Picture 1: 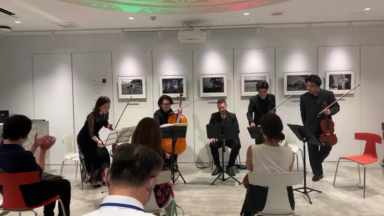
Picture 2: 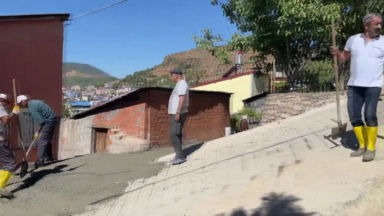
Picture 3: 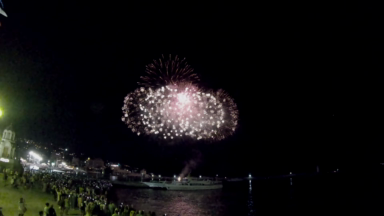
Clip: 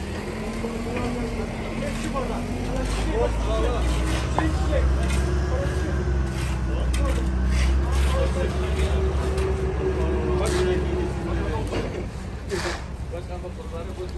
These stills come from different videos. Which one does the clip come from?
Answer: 2